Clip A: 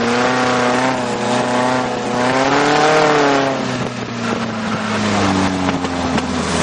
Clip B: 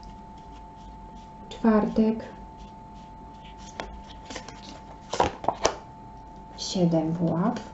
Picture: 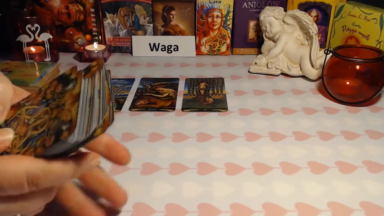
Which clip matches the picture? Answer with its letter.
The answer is B